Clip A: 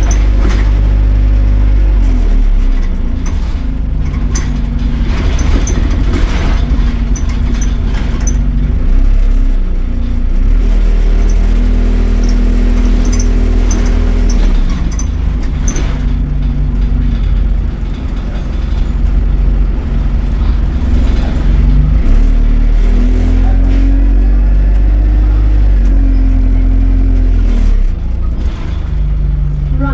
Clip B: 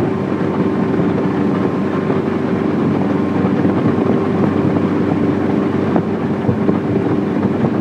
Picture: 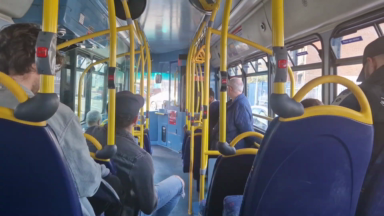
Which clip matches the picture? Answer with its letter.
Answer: A